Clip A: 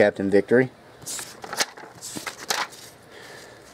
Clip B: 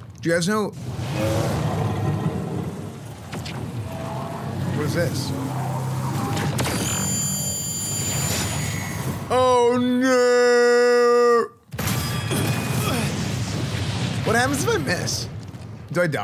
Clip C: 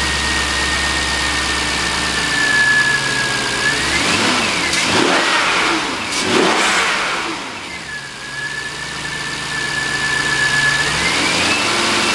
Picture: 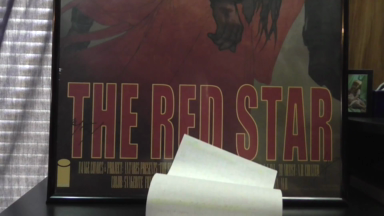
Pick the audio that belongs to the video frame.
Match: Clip A